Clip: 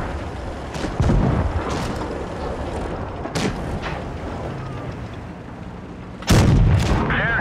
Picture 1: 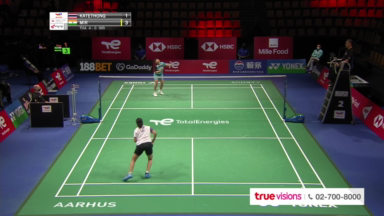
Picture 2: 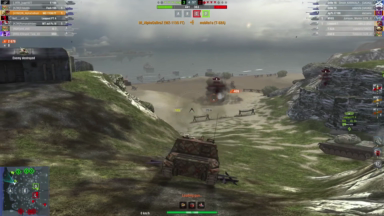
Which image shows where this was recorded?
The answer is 2